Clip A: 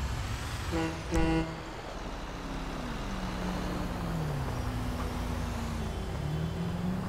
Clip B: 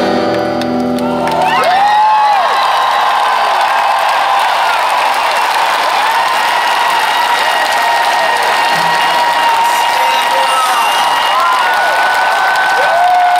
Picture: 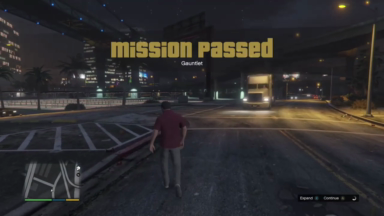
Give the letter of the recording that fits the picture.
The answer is A